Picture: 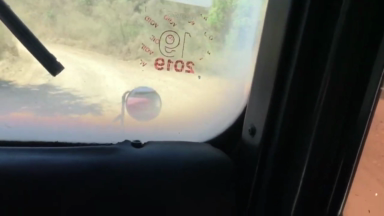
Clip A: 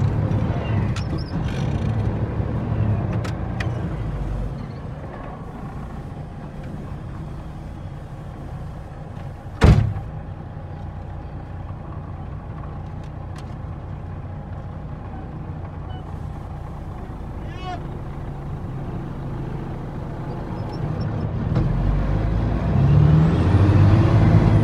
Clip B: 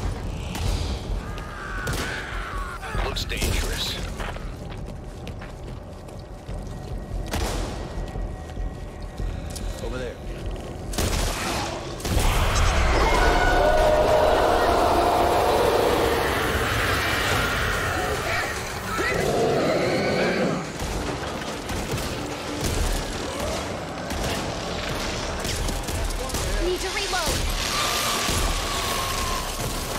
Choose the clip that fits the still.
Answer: A